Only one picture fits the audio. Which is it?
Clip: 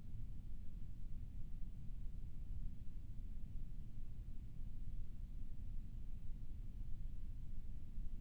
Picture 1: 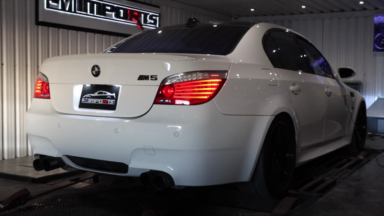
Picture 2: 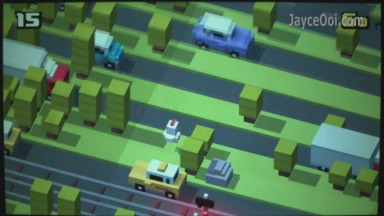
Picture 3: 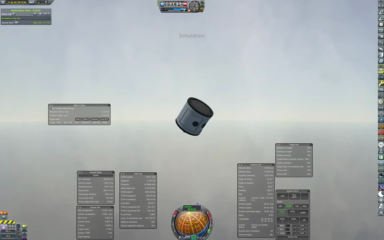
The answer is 3